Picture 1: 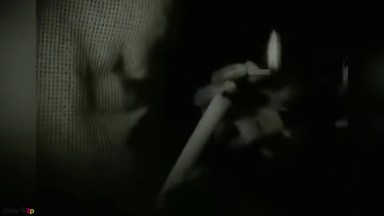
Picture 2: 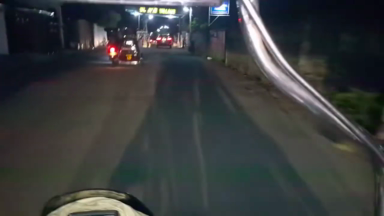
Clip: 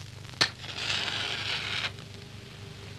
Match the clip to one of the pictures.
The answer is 1